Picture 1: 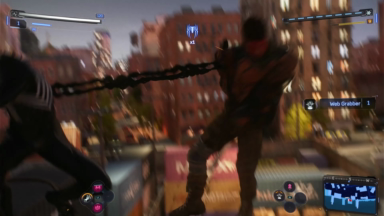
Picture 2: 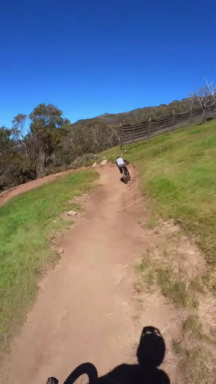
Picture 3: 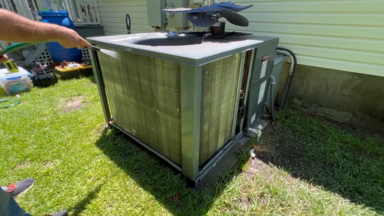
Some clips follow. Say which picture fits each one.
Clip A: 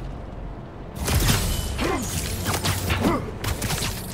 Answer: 1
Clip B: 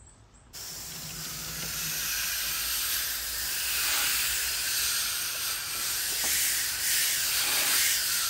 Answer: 3